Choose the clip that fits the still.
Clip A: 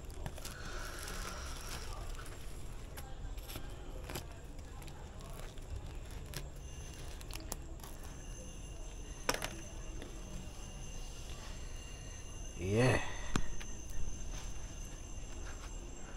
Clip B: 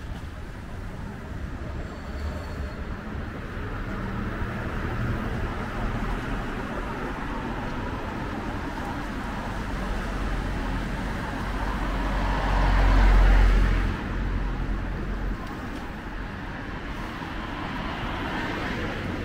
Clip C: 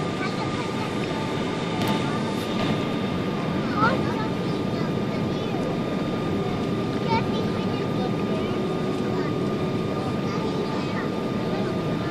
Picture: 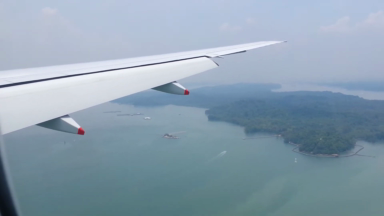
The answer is C